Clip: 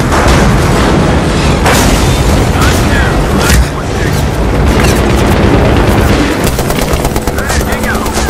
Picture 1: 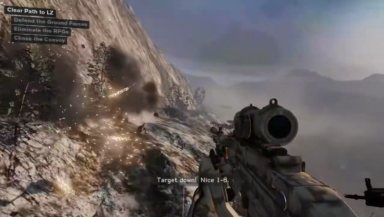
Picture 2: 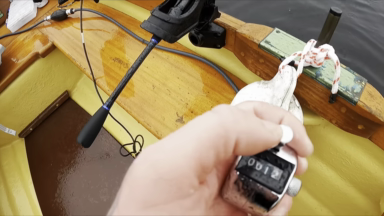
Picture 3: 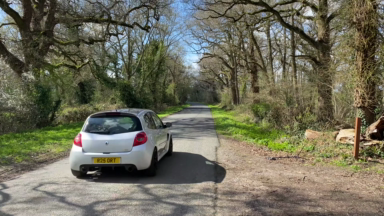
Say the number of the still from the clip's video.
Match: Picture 1